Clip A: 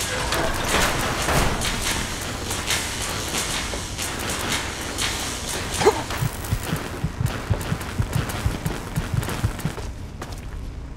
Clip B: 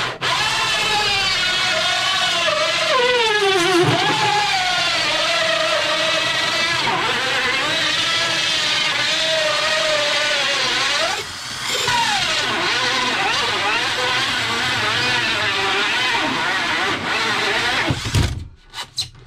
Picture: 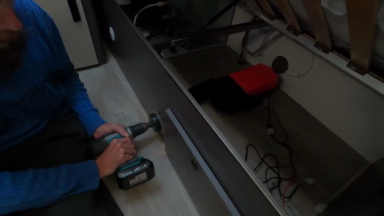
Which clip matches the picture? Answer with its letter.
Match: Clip B